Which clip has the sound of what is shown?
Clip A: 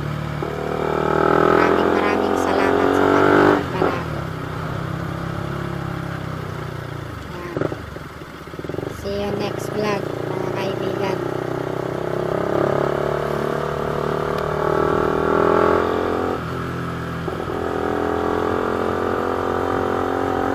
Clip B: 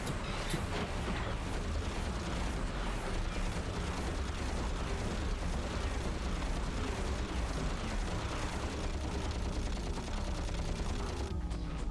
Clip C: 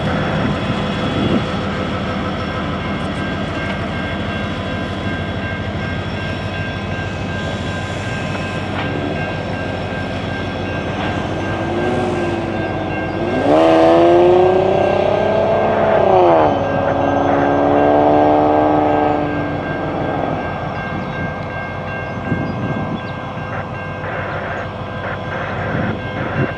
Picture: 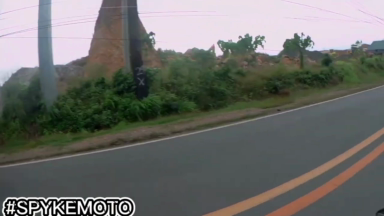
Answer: A